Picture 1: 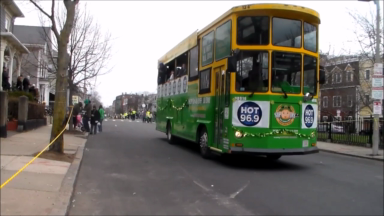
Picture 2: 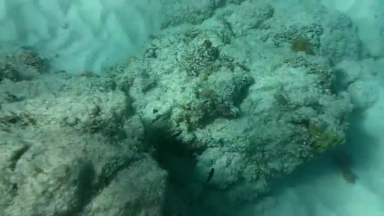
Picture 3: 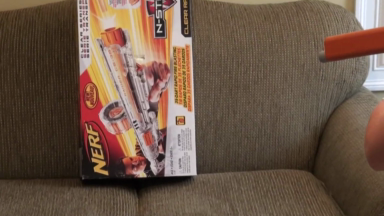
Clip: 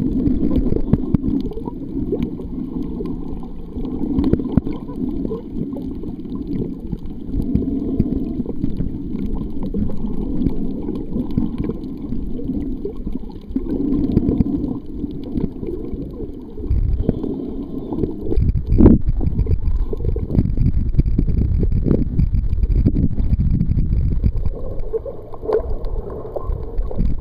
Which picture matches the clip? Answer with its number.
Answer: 2